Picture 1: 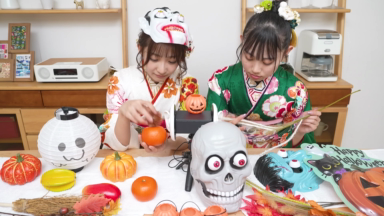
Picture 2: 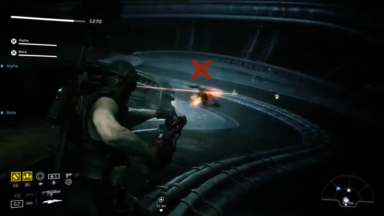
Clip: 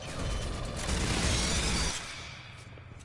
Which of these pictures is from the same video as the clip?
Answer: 2